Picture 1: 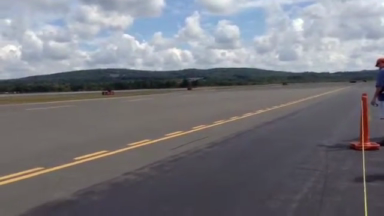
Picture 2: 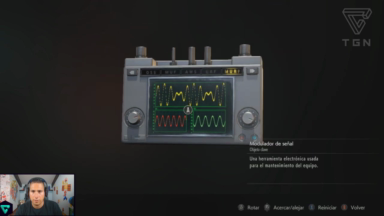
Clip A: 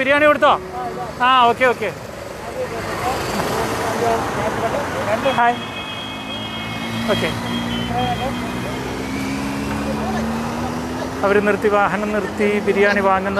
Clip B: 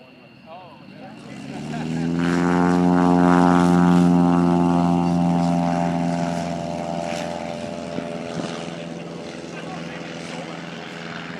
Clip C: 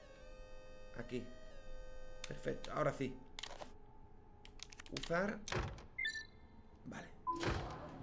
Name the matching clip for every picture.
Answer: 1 B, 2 C